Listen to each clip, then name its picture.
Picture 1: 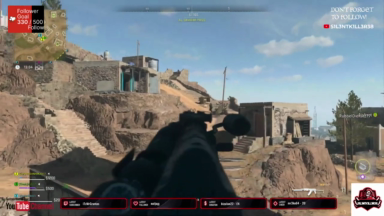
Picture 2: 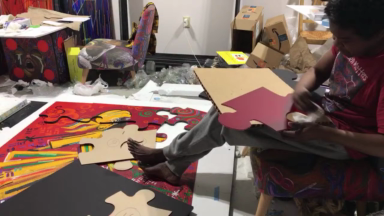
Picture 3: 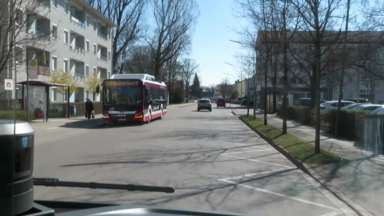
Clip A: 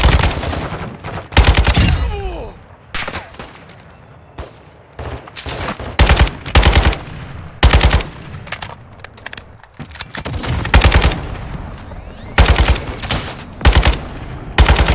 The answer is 1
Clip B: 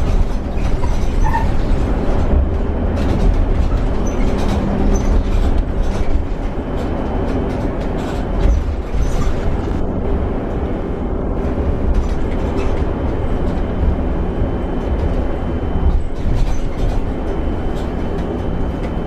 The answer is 3